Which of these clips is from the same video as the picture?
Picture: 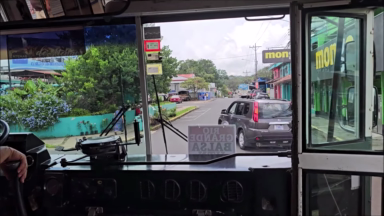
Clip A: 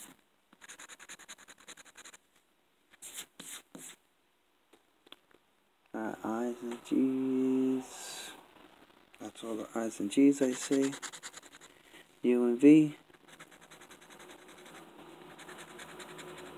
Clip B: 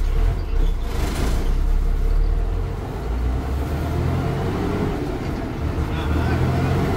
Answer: B